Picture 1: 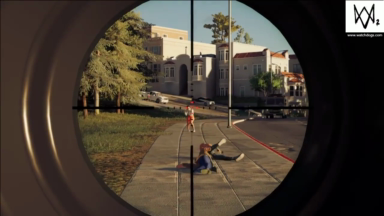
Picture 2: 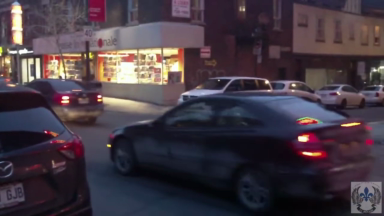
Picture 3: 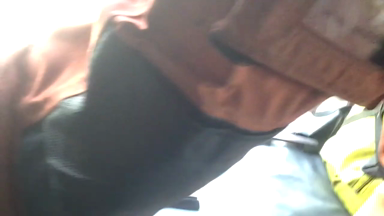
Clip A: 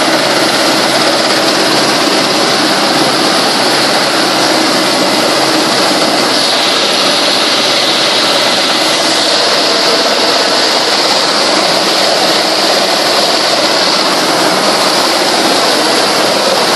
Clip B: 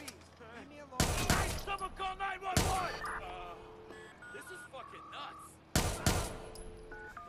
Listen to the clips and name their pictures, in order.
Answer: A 3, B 1